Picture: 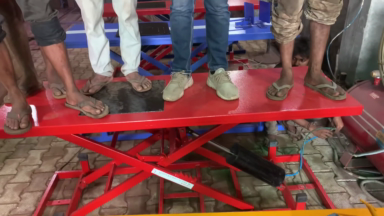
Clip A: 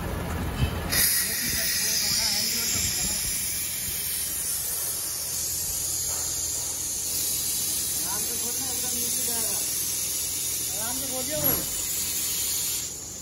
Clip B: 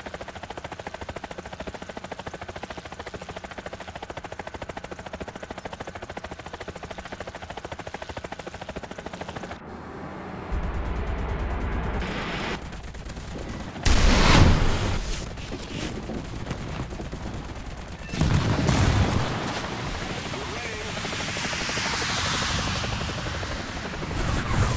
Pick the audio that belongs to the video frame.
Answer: A